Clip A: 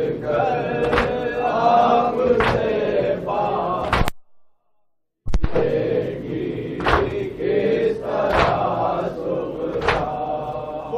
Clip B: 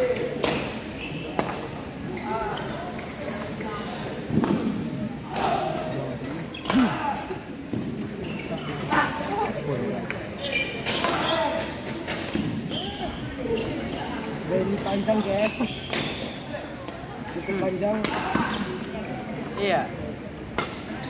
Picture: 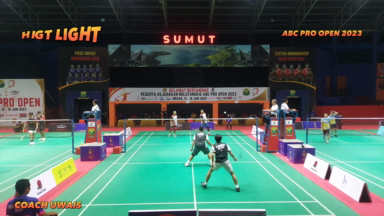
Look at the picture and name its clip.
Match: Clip B